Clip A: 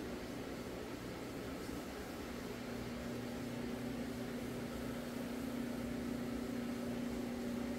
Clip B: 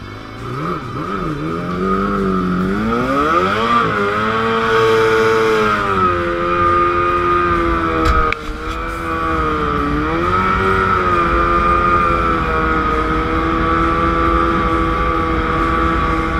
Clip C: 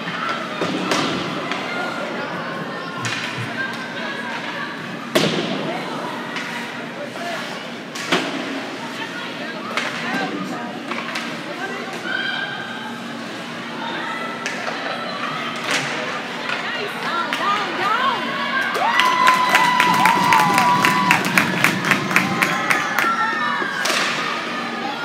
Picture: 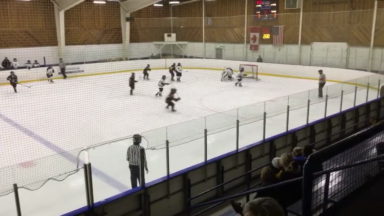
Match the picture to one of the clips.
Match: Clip C